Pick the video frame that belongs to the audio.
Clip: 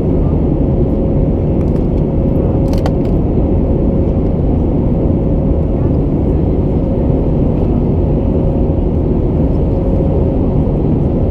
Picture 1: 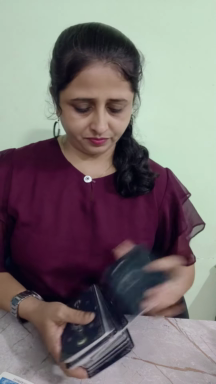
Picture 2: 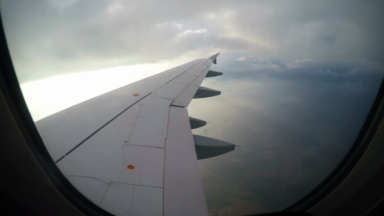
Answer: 2